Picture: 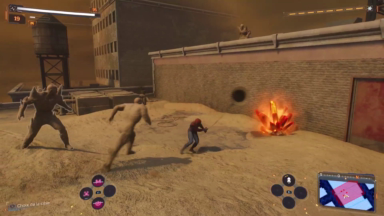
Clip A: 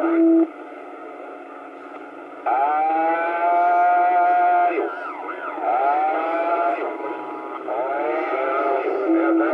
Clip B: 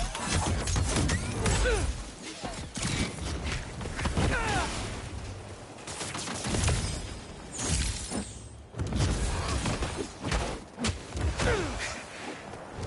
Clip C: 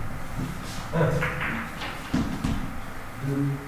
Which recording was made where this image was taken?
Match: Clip B